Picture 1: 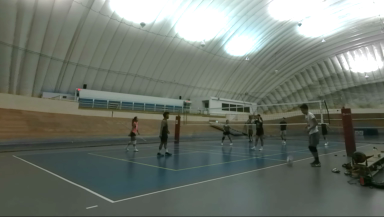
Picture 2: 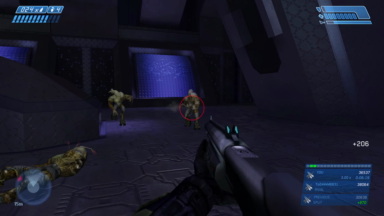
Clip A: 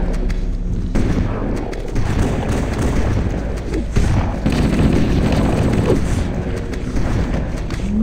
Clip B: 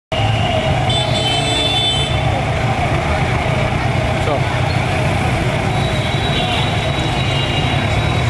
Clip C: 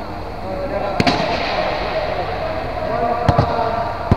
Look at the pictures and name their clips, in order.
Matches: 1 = C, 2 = A